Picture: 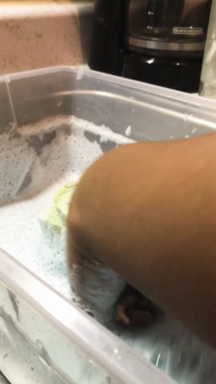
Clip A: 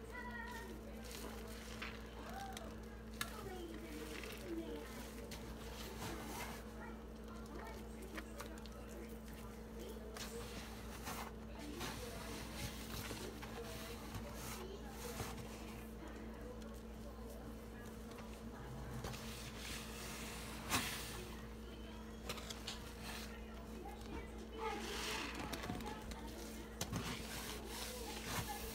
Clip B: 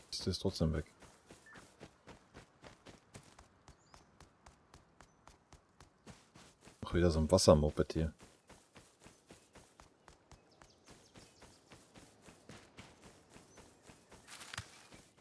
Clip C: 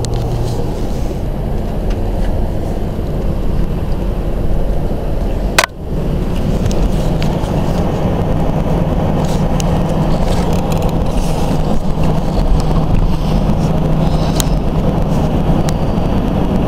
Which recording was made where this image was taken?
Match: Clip A